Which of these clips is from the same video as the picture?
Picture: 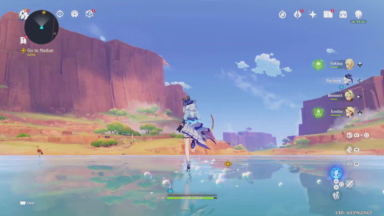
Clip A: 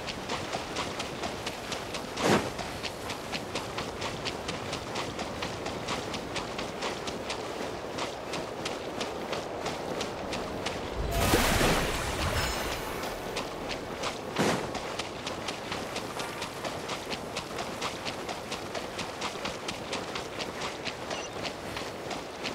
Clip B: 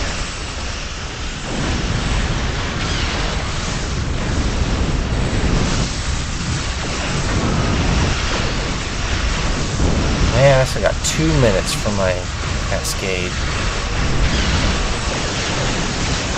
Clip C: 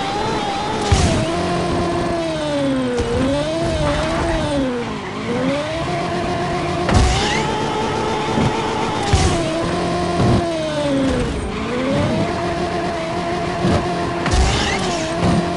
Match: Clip A